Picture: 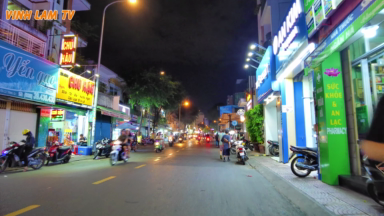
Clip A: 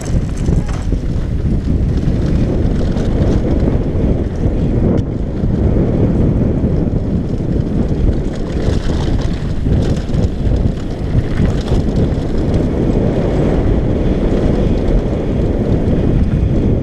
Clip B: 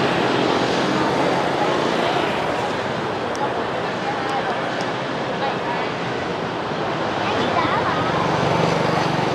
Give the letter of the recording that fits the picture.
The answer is B